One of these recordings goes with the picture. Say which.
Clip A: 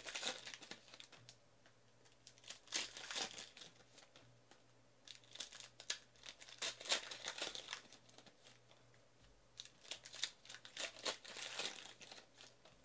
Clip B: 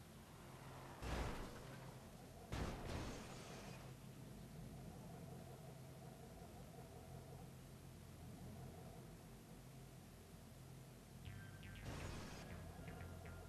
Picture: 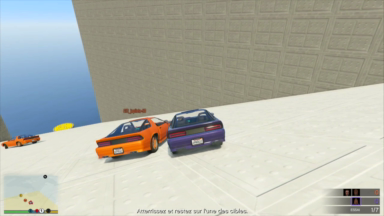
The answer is B